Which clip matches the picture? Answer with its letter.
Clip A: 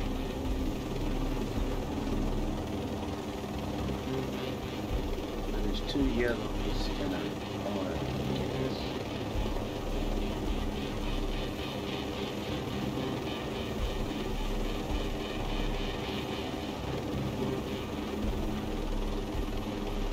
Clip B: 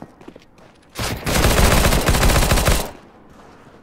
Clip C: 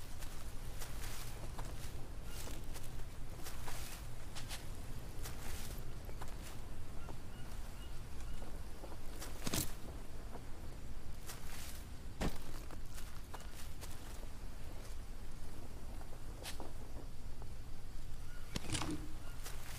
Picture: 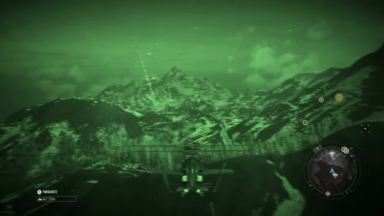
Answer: A